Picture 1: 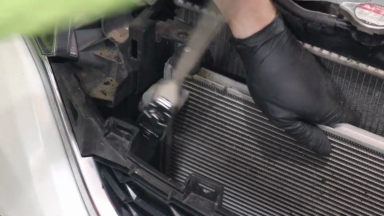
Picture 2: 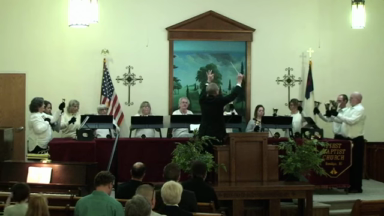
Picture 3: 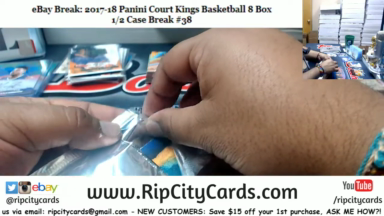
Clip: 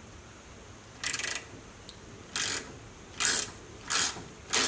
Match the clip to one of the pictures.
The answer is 1